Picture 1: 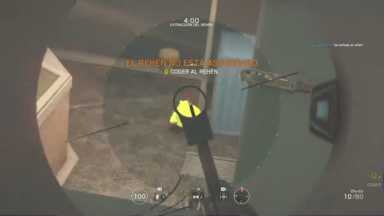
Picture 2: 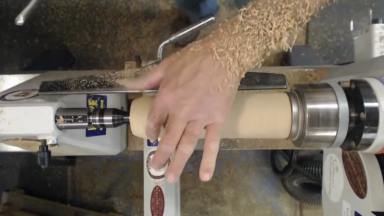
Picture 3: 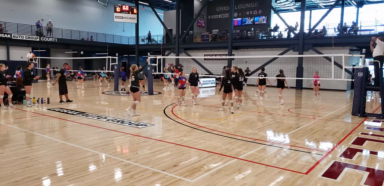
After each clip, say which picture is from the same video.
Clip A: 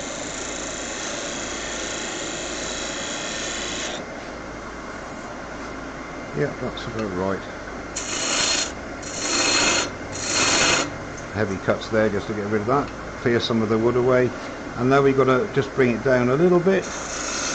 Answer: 2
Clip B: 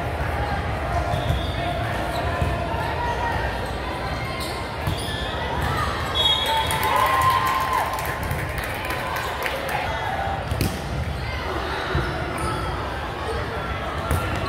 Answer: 3